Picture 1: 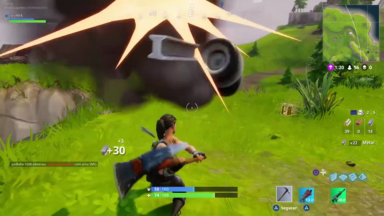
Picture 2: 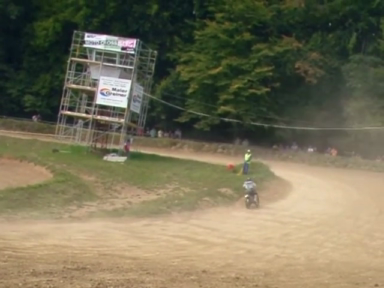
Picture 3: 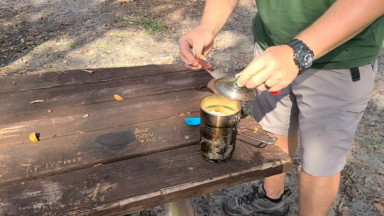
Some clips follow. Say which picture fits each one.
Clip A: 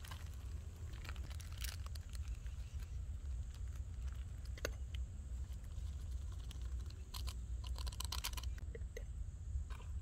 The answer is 3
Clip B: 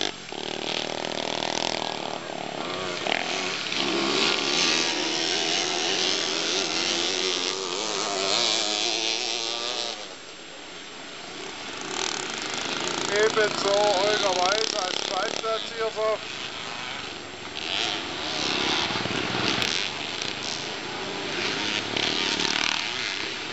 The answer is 2